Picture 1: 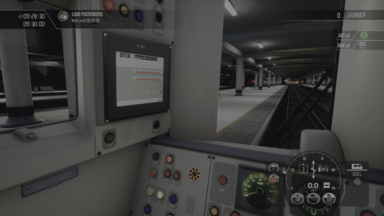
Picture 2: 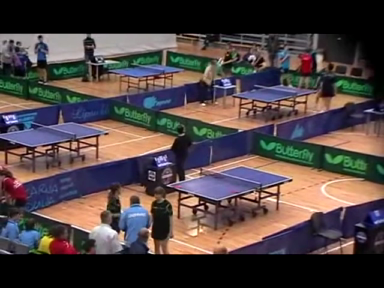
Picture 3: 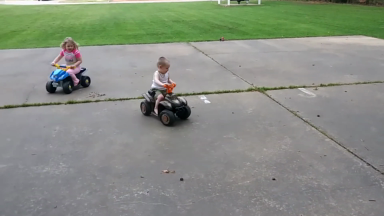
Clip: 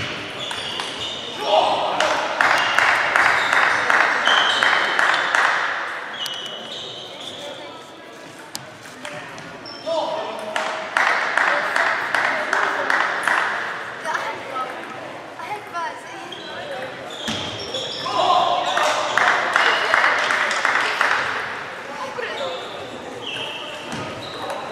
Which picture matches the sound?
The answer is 2